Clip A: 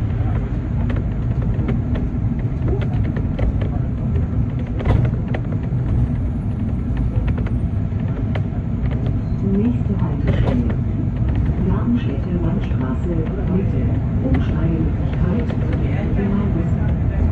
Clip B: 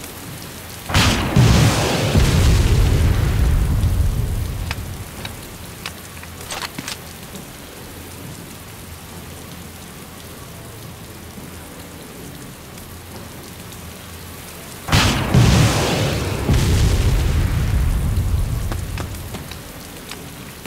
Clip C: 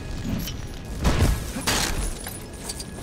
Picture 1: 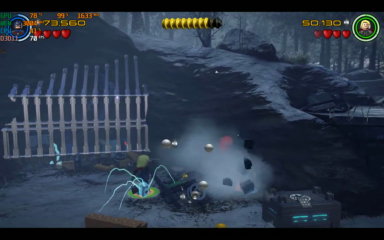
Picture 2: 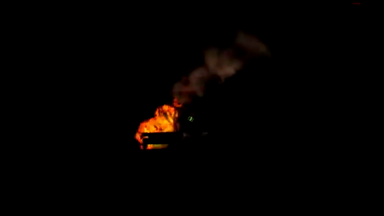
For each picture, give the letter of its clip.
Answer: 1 C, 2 B